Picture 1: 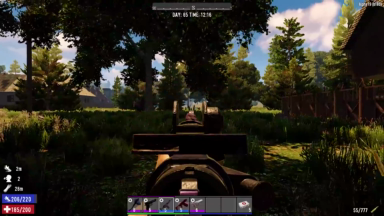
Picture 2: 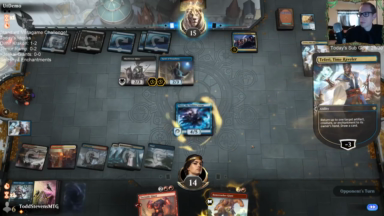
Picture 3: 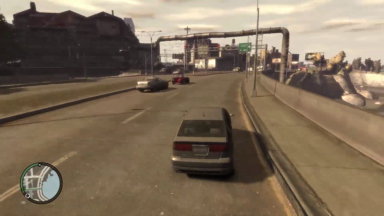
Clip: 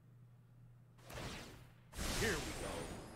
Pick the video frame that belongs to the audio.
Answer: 2